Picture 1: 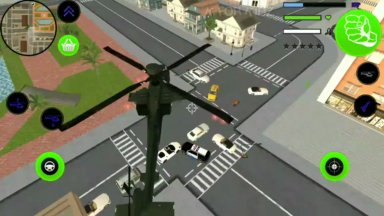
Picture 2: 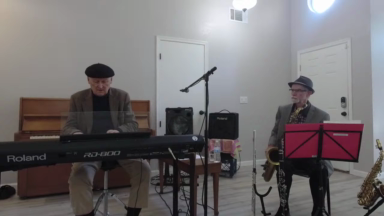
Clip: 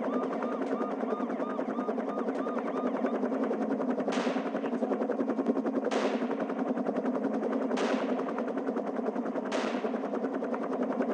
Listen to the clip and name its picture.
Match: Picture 1